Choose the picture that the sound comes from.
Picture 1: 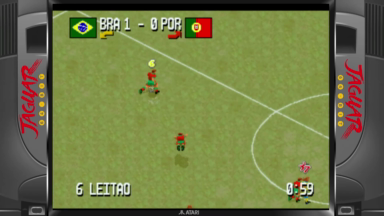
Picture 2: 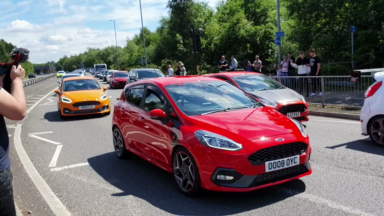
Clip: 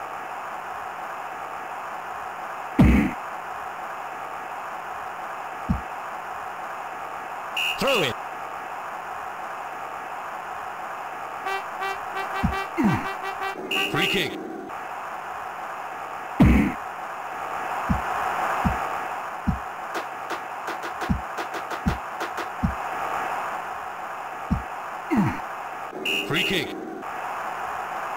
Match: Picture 1